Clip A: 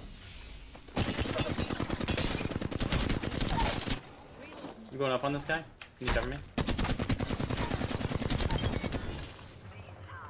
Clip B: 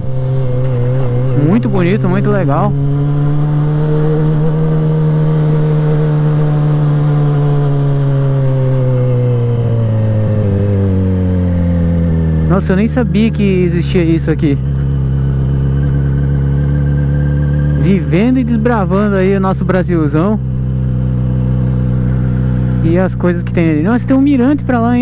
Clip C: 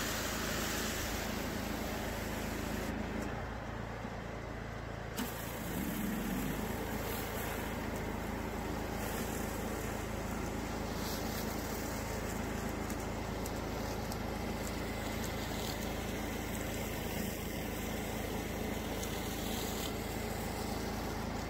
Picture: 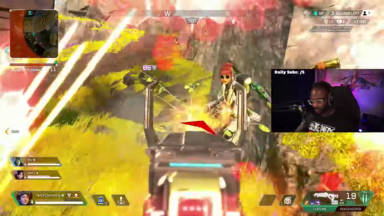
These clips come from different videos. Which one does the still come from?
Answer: A